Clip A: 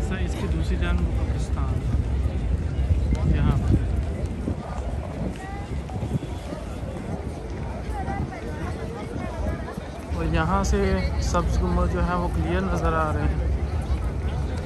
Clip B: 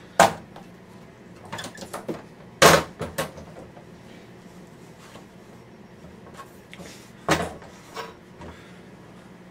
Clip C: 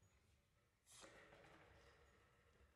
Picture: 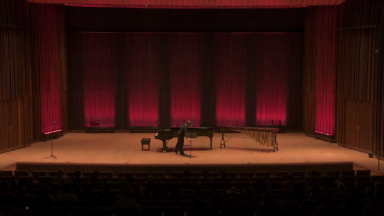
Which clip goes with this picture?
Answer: C